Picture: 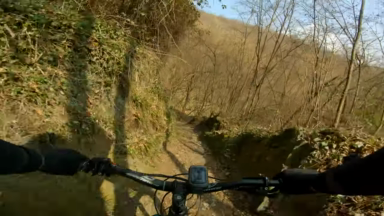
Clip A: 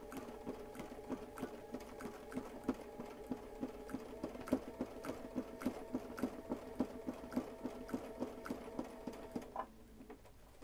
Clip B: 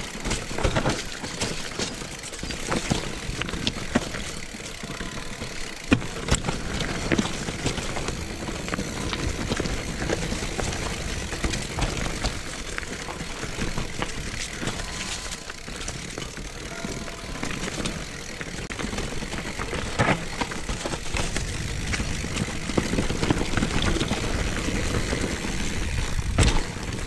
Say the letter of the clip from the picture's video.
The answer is B